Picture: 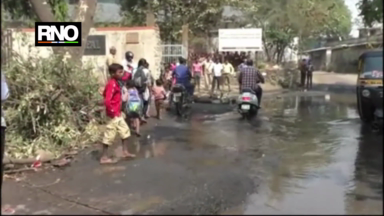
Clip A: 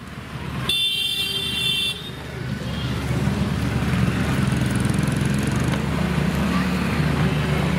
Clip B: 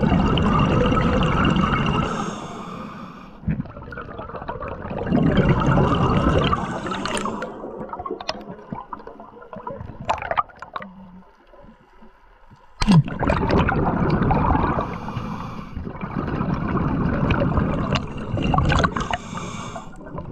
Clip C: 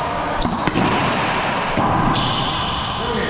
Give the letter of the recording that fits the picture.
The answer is A